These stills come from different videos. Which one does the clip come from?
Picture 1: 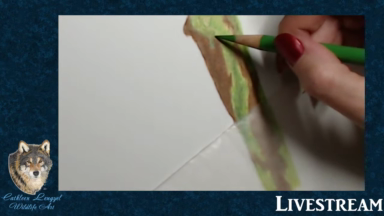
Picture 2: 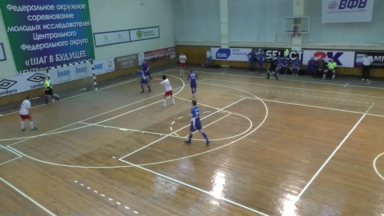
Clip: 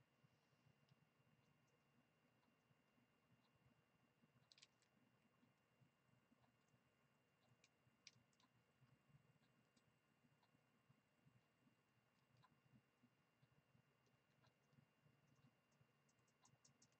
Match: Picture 1